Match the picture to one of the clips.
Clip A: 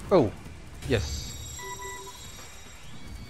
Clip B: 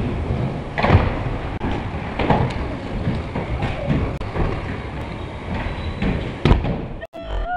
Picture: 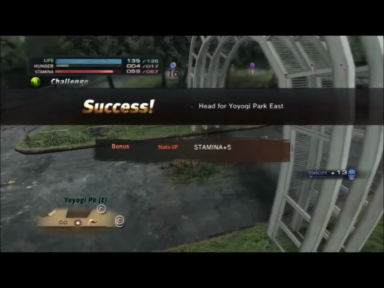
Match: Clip A